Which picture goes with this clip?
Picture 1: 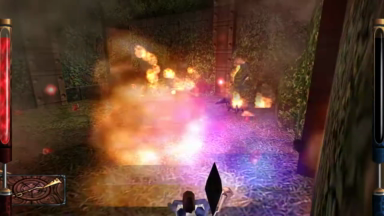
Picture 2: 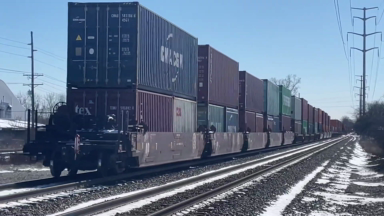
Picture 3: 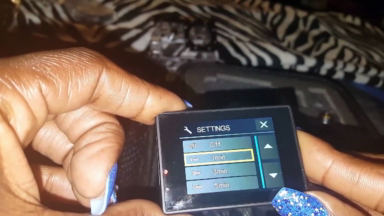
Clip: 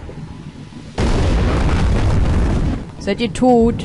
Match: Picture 1